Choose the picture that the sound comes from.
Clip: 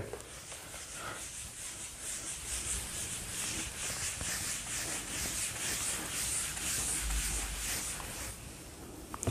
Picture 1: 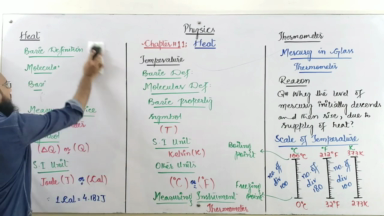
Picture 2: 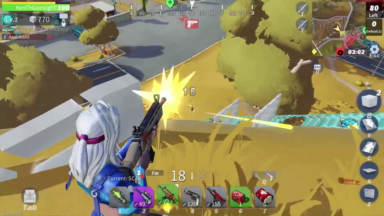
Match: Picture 1